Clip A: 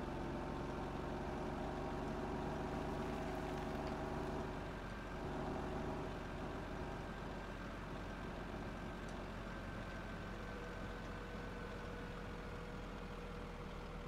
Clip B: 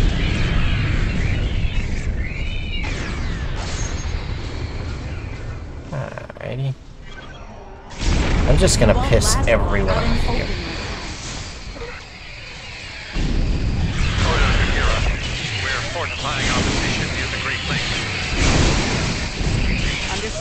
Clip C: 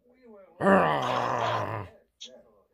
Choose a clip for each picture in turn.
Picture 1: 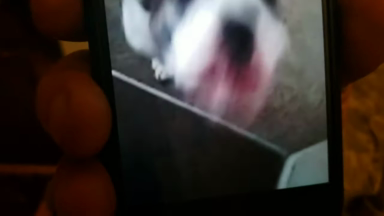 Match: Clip C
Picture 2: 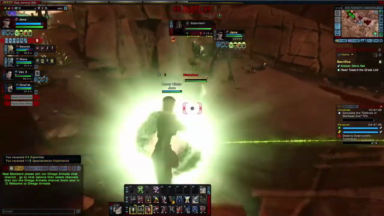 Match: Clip B